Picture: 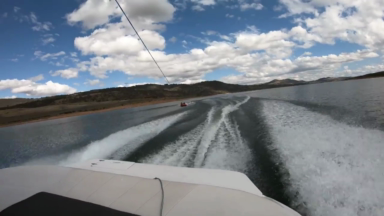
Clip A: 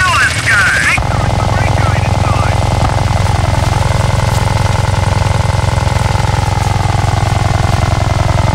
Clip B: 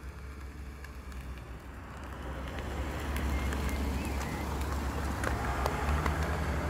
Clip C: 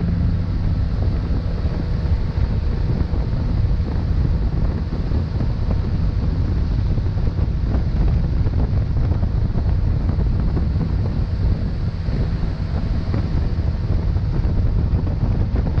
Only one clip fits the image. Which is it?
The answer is C